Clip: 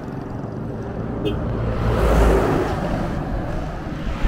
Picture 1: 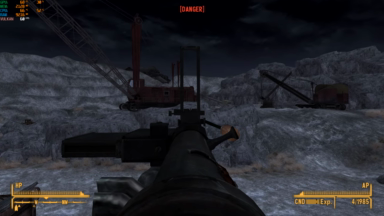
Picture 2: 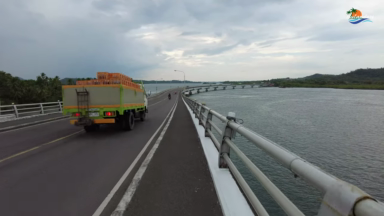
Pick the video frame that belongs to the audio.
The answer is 2